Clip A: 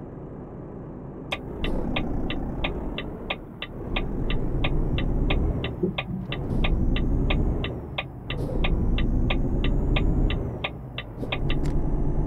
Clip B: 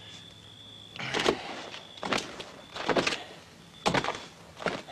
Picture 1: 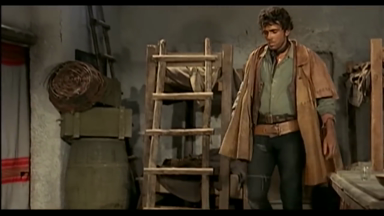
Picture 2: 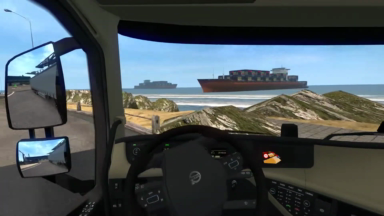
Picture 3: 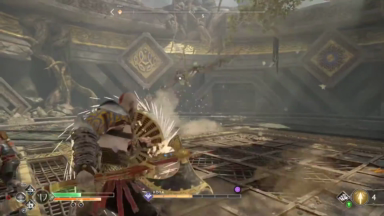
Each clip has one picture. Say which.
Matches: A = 2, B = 1